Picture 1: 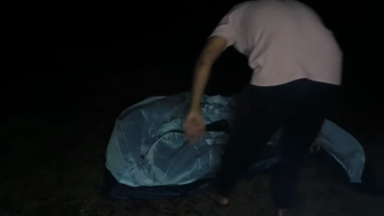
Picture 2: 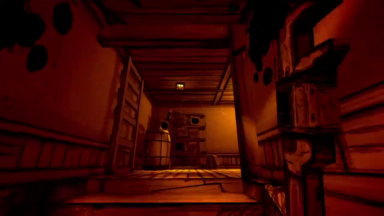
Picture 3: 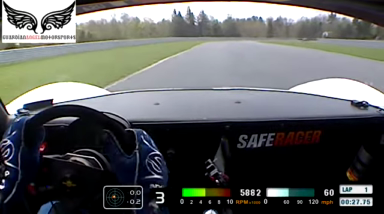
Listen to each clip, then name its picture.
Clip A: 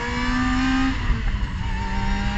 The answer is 3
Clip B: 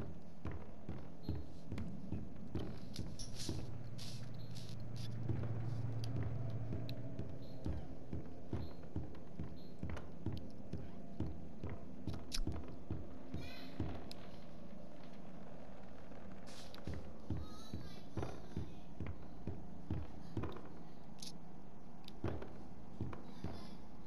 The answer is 2